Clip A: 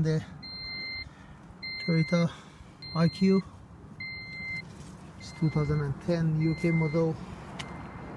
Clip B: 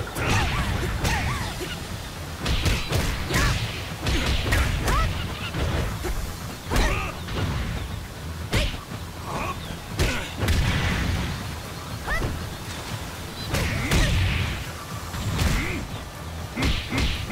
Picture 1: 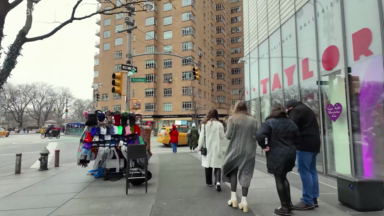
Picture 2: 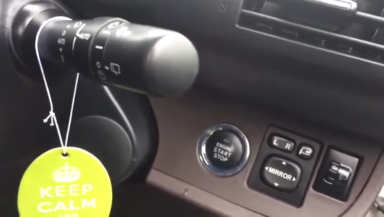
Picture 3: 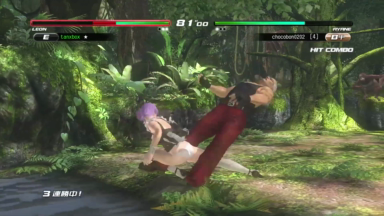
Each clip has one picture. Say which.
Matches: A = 2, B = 3